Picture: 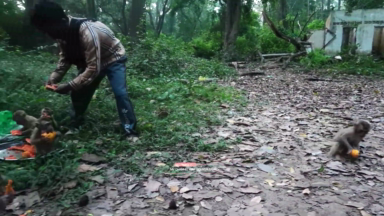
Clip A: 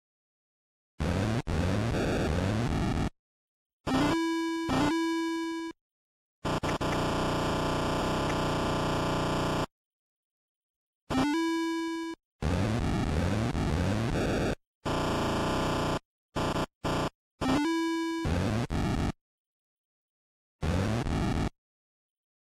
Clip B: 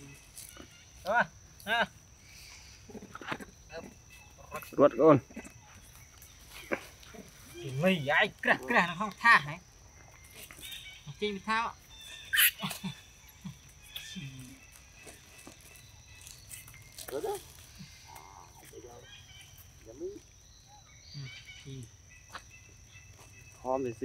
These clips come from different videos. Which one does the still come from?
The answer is B